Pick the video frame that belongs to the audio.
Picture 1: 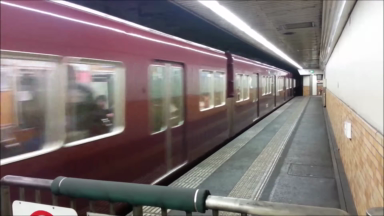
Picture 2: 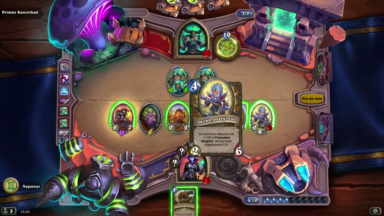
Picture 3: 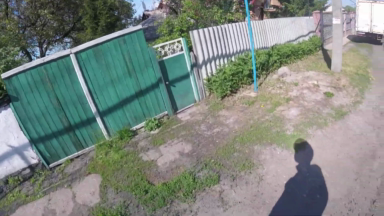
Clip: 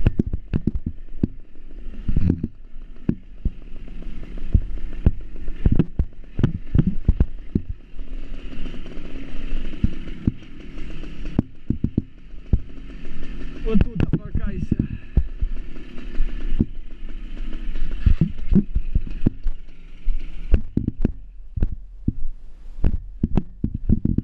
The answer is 3